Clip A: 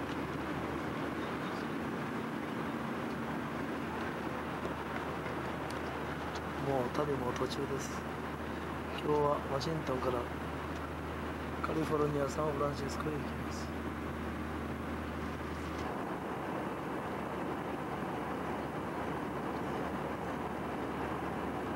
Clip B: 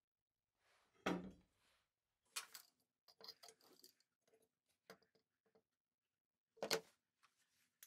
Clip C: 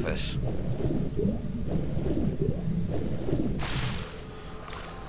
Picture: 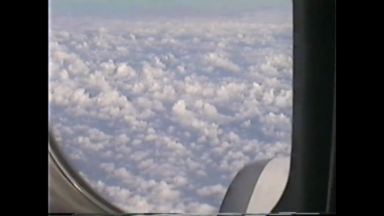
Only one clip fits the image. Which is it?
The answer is A